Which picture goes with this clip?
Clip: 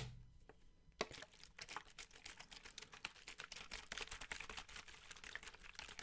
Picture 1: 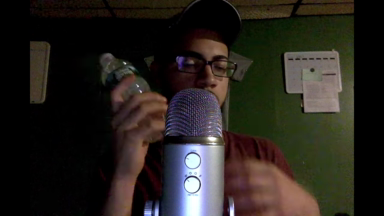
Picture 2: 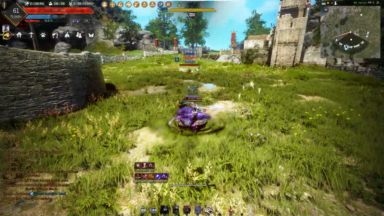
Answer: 1